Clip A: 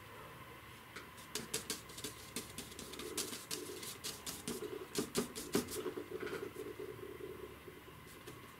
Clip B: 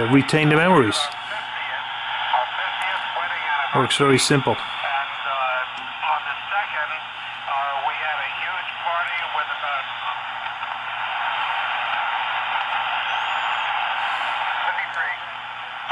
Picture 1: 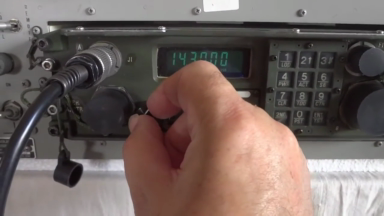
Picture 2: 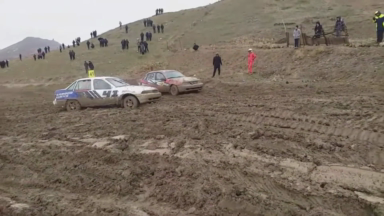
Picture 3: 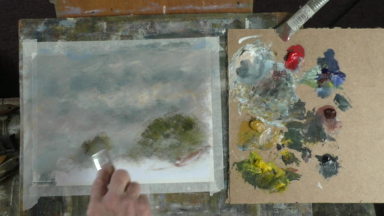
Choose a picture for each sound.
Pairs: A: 3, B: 1